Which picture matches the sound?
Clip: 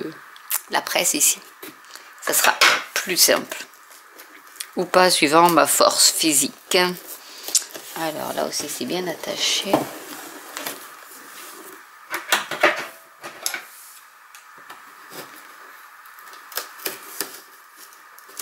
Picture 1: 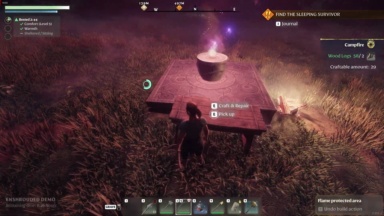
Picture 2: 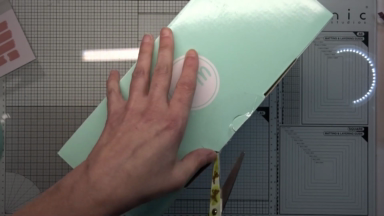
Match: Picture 2